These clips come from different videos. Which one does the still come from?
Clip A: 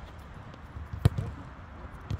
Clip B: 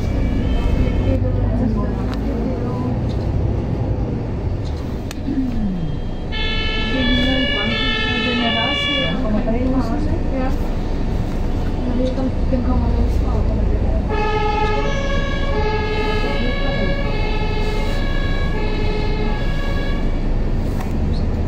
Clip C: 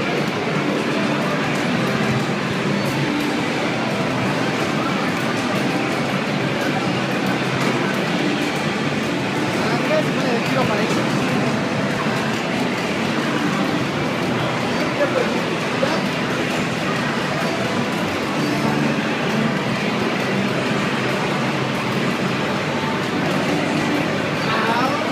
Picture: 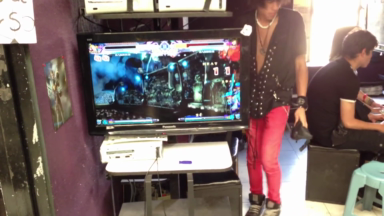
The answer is C